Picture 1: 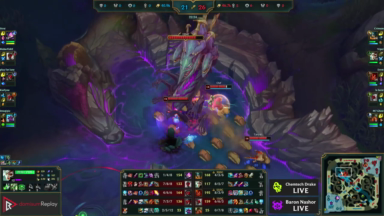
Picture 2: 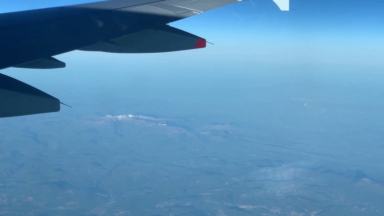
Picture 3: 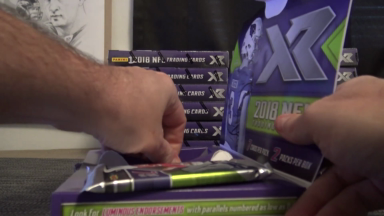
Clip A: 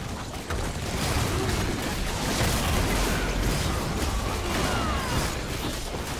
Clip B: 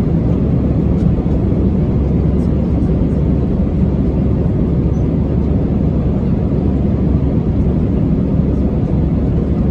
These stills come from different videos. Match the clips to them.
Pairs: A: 1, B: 2